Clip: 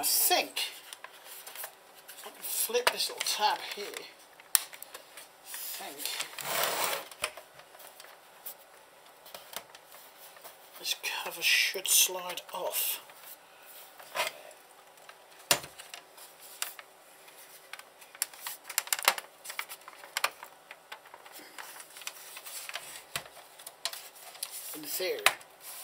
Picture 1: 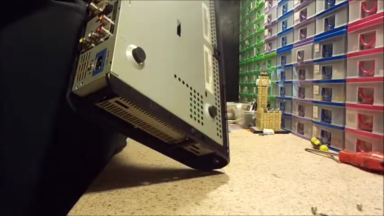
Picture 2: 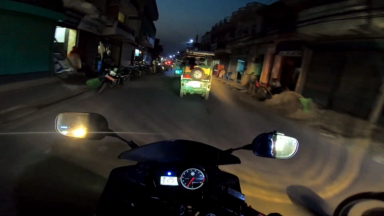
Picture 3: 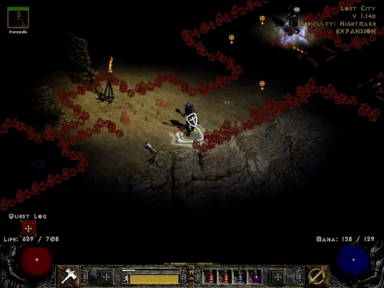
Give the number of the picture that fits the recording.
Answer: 1